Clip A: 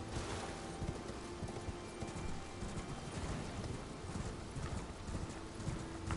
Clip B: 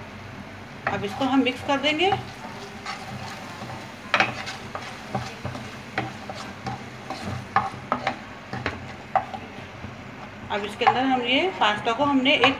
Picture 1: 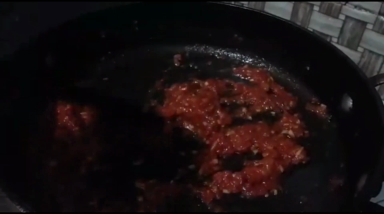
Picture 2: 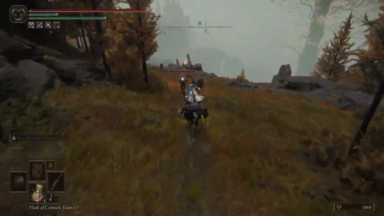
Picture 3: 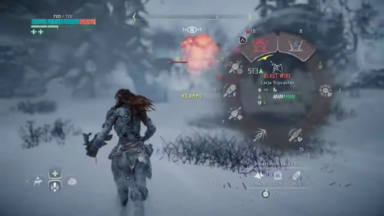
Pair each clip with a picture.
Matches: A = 2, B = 1